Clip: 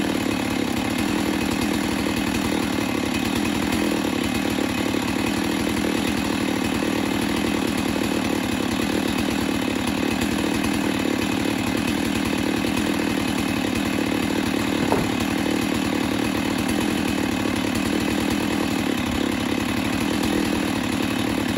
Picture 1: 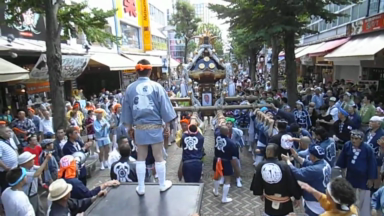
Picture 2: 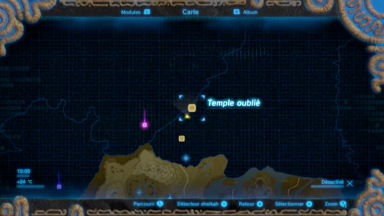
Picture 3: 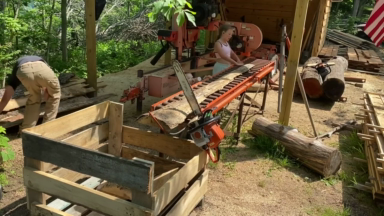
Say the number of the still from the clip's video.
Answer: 3